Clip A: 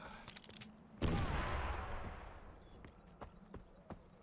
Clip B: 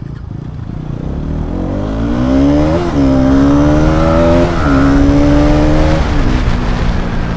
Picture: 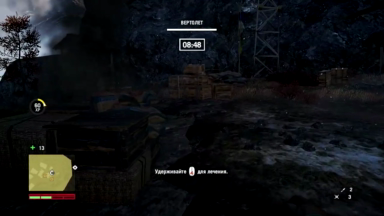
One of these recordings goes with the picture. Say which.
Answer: A